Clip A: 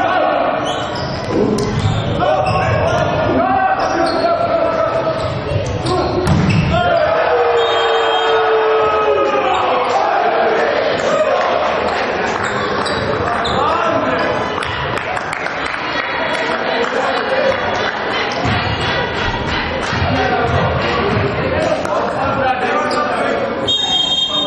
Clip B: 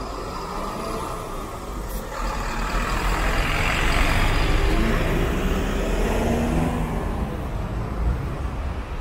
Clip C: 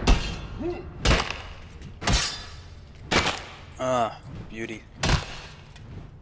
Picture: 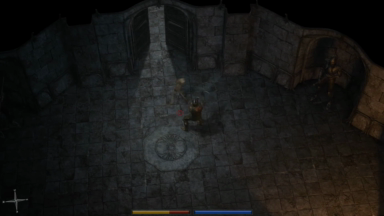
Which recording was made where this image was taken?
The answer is C